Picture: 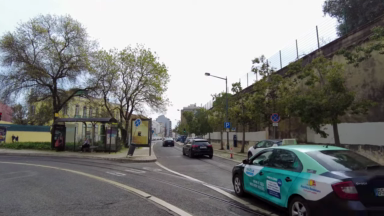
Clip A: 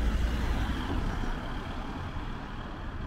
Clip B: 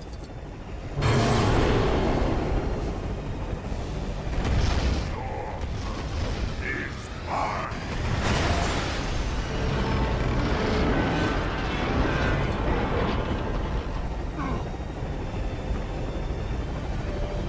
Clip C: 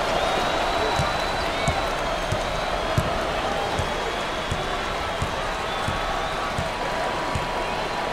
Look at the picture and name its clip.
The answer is A